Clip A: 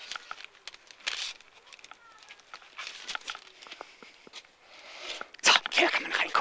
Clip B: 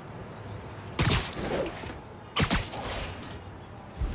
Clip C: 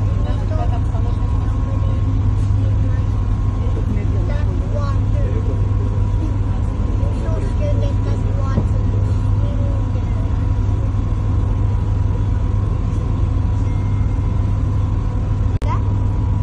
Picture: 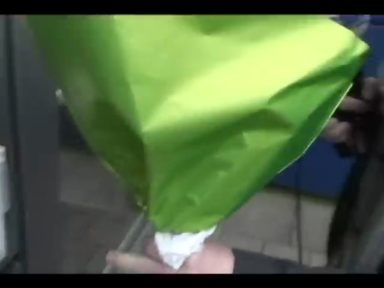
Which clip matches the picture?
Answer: A